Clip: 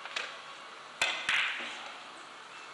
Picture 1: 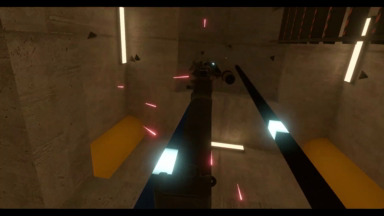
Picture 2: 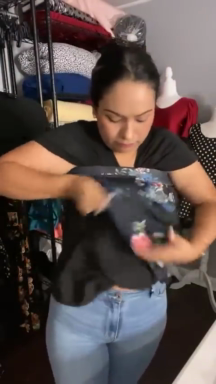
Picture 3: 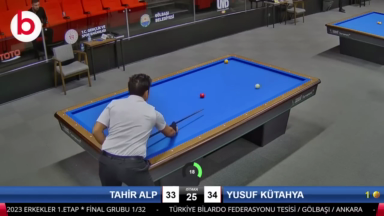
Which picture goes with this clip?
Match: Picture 3